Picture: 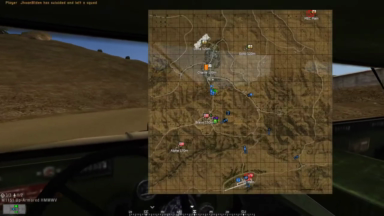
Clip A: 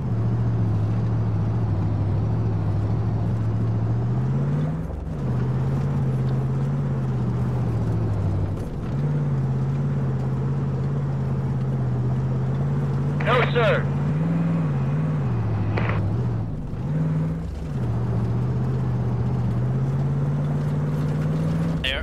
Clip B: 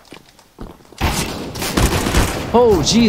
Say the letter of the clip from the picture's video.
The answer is A